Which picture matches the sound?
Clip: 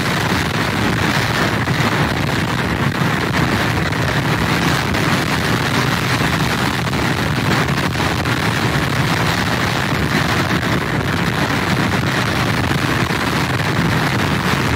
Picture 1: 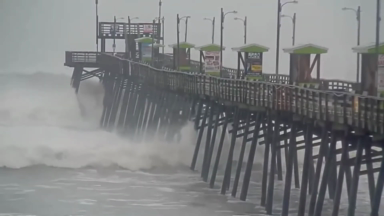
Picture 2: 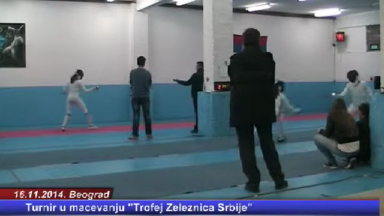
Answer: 1